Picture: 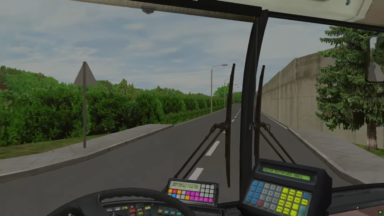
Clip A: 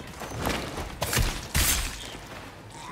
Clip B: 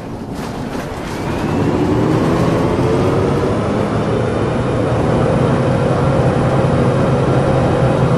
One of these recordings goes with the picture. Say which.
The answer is B